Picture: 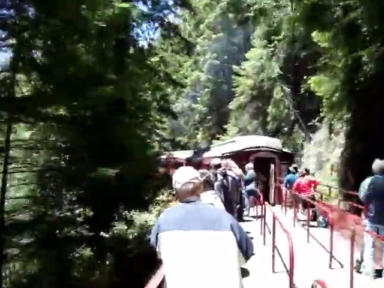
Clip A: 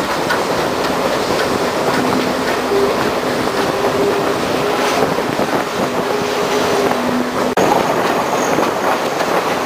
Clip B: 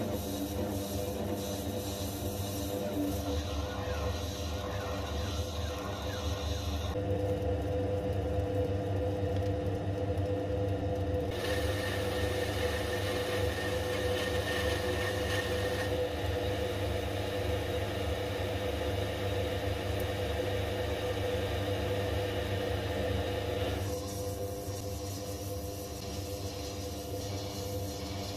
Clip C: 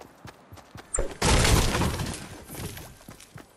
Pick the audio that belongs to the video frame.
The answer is A